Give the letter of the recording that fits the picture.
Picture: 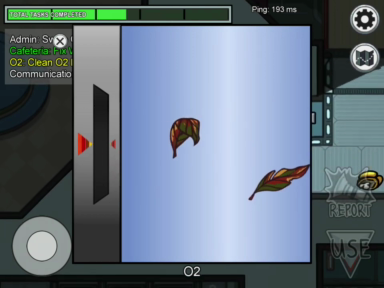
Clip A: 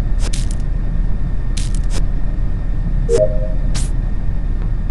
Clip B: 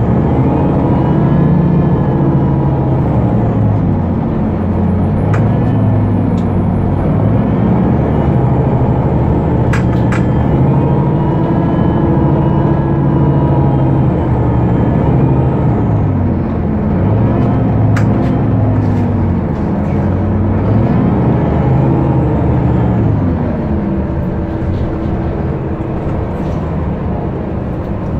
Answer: A